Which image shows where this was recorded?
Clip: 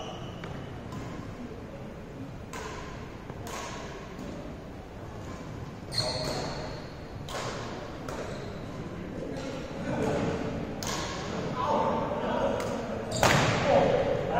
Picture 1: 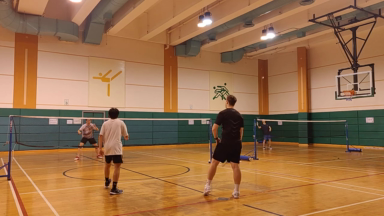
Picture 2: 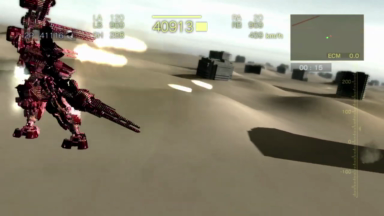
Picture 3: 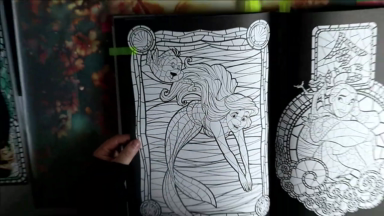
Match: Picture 1